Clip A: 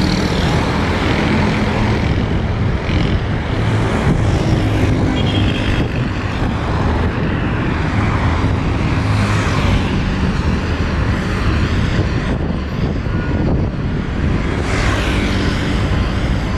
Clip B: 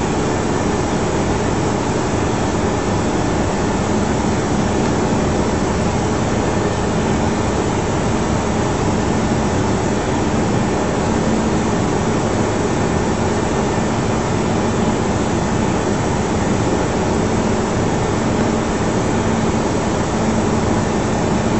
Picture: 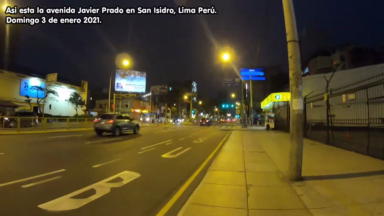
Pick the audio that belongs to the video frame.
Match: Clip A